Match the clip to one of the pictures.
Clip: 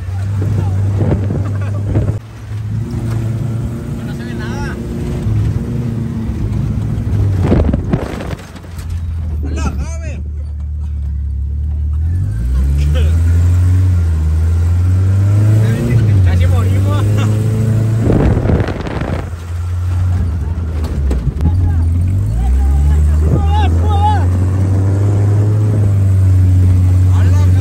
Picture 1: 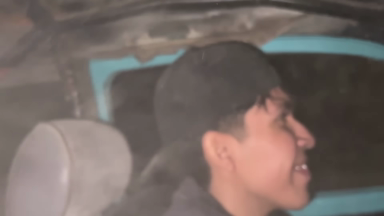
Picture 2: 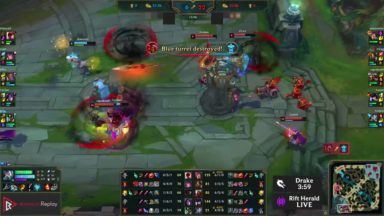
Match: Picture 1